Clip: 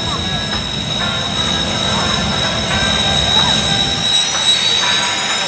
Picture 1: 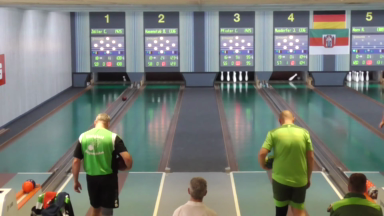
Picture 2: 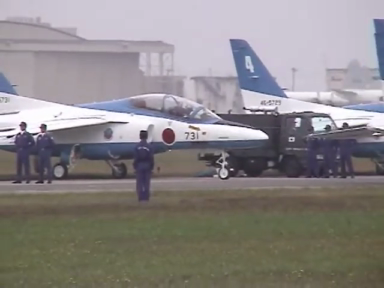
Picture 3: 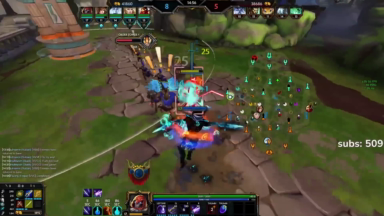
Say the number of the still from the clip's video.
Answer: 2